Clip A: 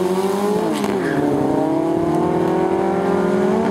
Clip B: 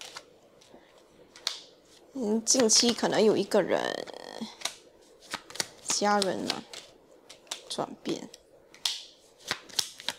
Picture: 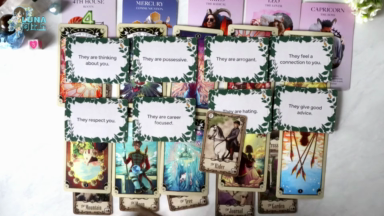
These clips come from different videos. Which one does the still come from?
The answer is B